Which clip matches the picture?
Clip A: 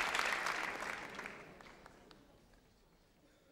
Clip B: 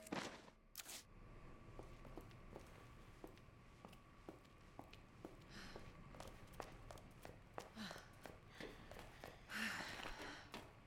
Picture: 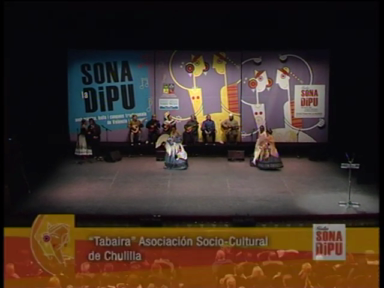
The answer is A